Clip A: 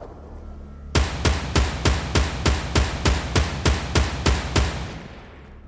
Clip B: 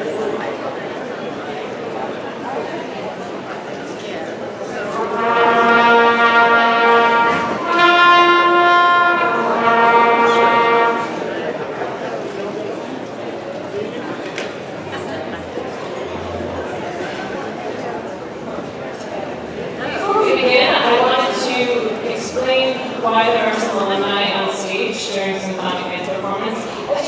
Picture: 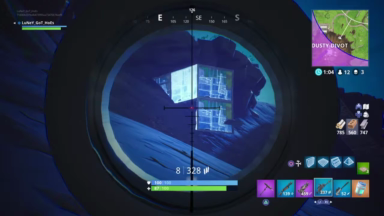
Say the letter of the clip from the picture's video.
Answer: A